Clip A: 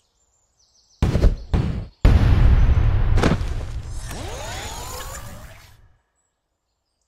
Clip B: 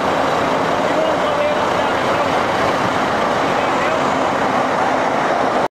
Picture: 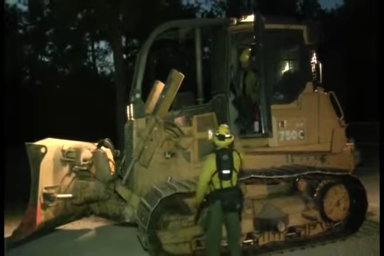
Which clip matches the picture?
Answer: B